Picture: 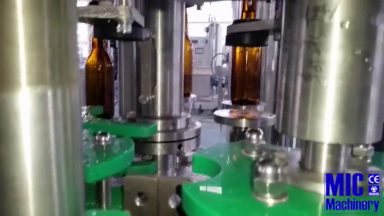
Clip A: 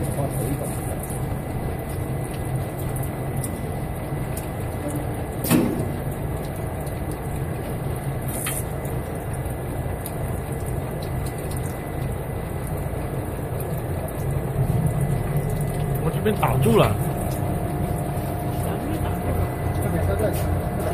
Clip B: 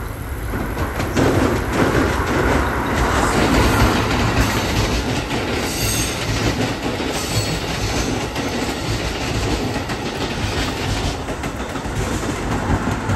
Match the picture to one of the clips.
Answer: A